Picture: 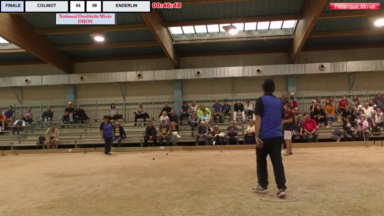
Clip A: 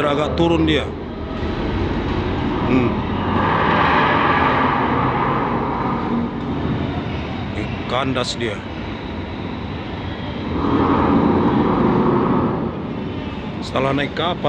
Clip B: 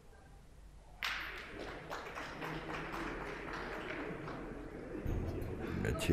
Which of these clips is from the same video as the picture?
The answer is B